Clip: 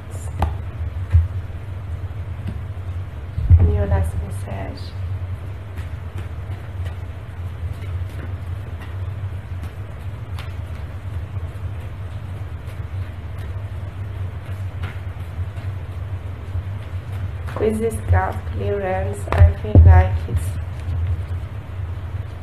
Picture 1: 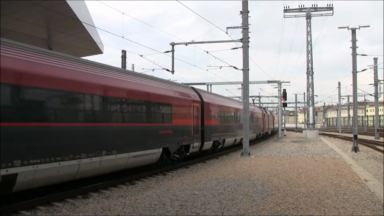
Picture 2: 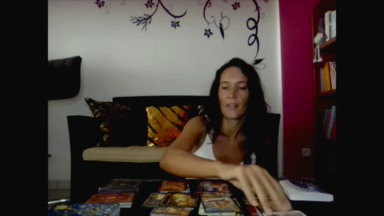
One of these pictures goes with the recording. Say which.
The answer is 2